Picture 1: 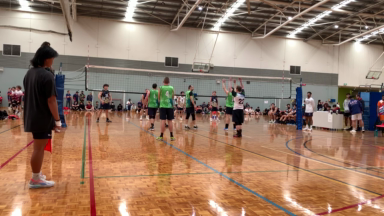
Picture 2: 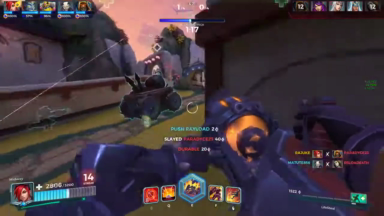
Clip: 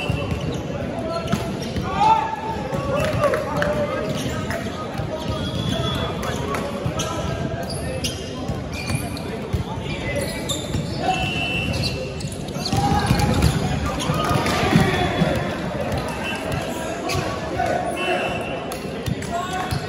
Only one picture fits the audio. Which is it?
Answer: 1